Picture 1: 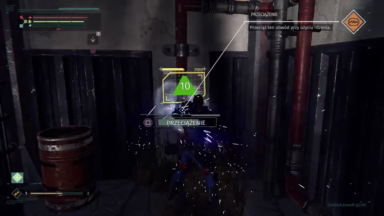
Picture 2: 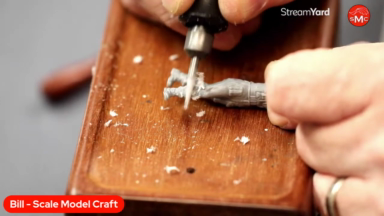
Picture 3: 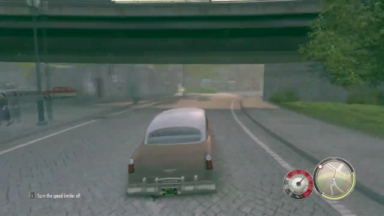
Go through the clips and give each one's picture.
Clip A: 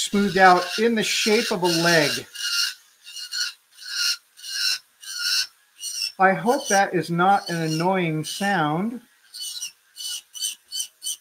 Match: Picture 2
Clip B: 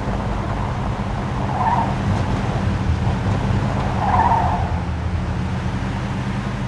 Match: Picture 3